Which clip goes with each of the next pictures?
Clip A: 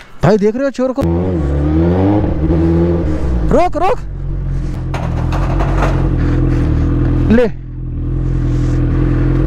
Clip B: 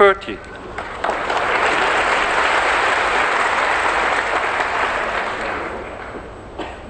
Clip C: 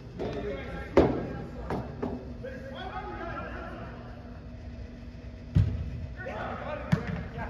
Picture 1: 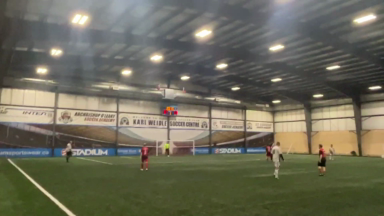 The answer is C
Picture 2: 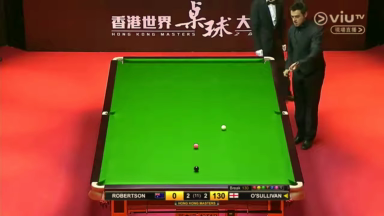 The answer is B